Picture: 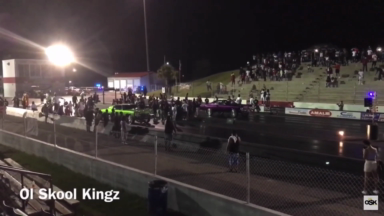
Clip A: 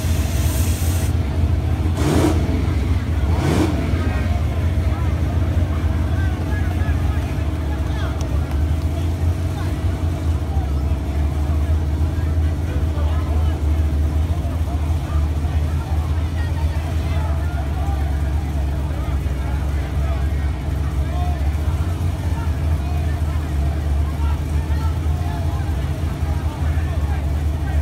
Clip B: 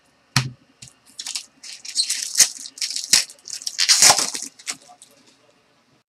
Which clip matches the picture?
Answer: A